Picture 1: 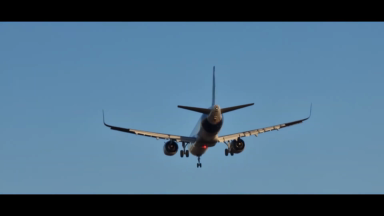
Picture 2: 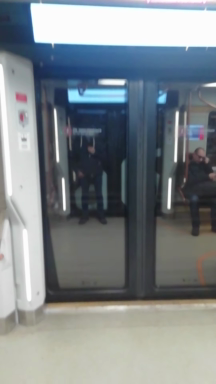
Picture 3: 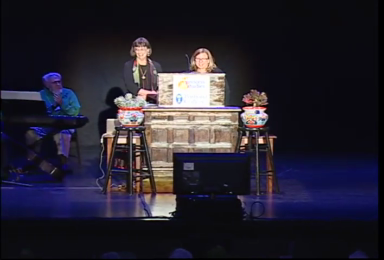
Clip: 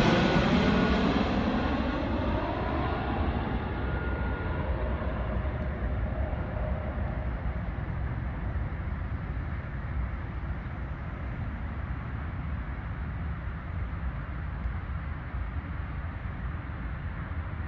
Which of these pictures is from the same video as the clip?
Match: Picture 1